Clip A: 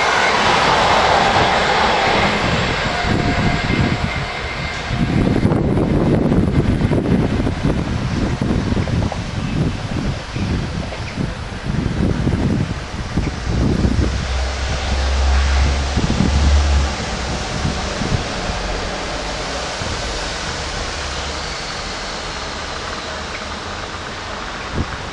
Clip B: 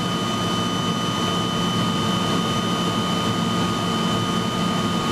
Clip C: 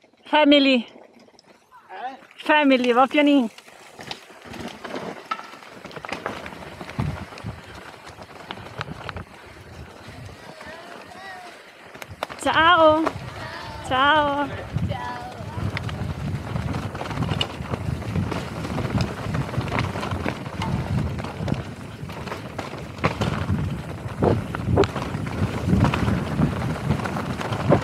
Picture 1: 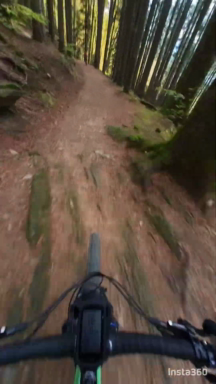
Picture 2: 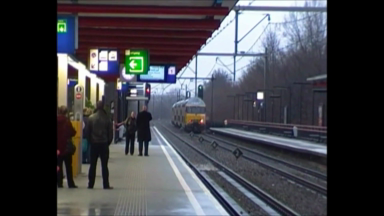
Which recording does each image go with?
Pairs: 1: C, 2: A